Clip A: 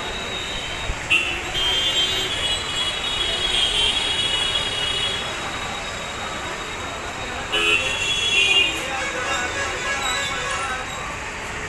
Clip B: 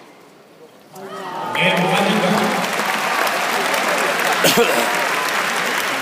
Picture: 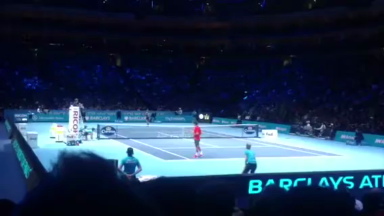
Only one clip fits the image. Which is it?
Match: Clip B